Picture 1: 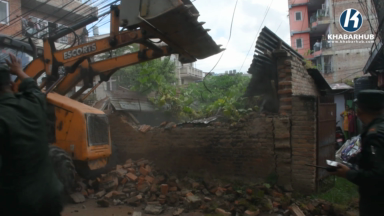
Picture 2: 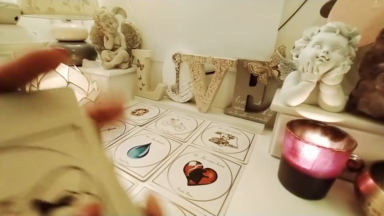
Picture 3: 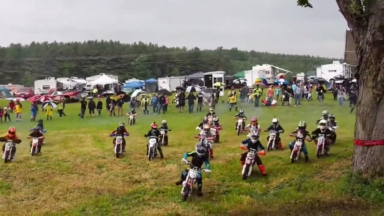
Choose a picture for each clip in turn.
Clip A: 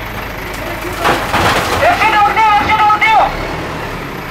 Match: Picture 1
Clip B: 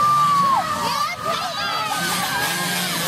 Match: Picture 3